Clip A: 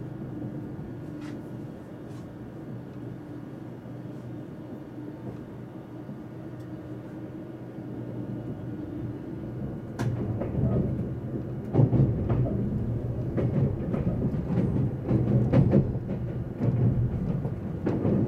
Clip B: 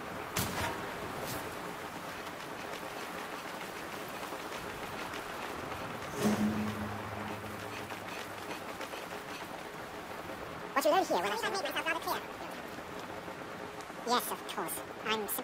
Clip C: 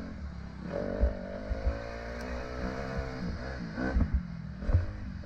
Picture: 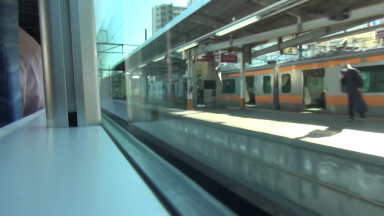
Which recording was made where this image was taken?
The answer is A